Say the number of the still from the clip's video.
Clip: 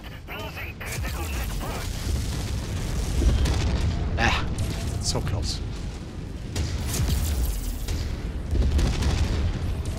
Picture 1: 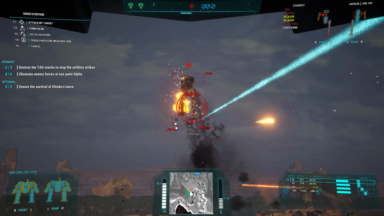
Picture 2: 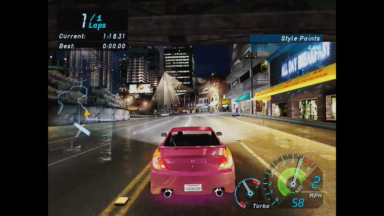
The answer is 1